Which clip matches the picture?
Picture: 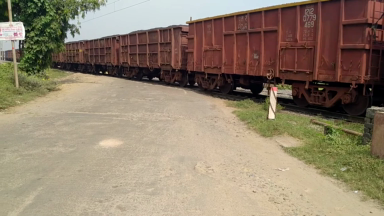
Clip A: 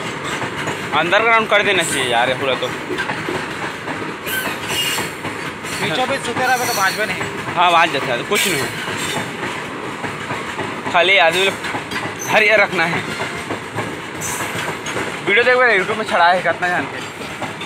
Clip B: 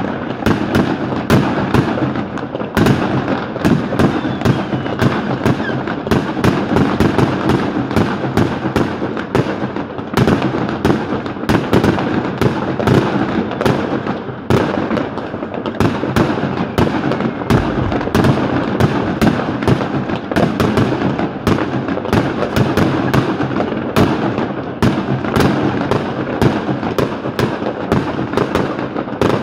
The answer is A